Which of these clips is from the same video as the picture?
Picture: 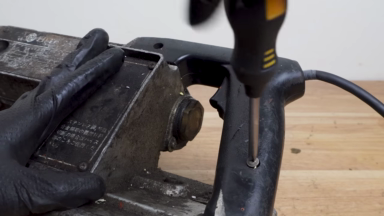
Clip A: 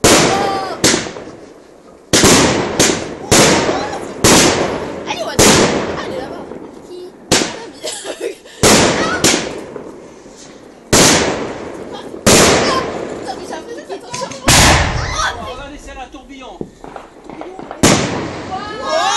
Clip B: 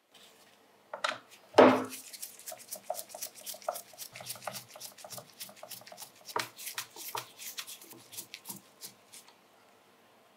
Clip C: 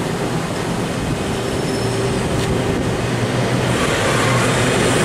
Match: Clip B